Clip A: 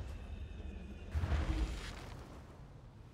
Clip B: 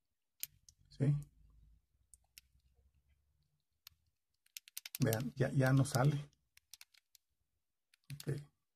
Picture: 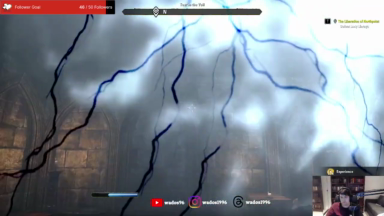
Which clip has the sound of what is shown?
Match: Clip A